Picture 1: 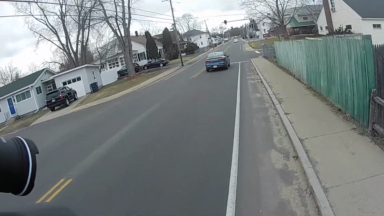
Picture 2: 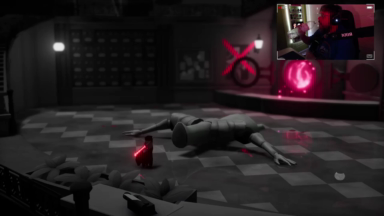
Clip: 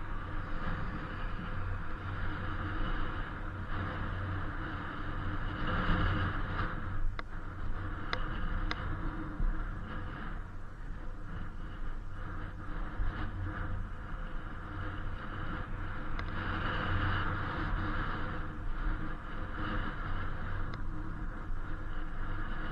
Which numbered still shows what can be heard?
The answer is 1